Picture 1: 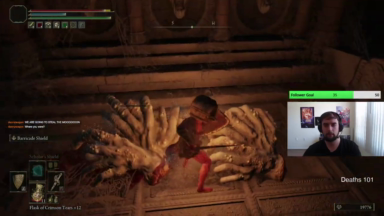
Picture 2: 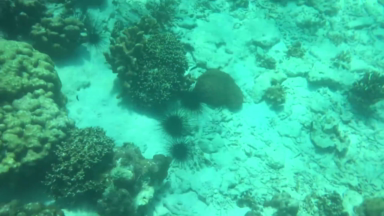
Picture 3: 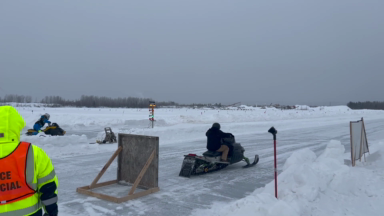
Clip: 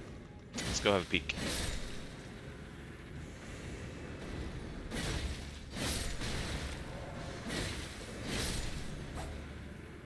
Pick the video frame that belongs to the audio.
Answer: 1